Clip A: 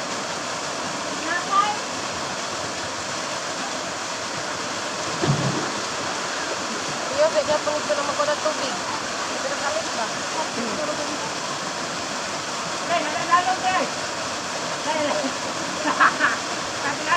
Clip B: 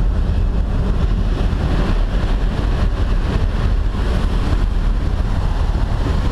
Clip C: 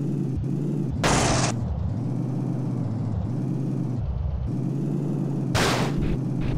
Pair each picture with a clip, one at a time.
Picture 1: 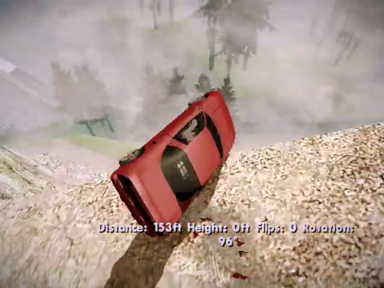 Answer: C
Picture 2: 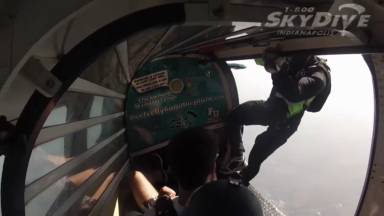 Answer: B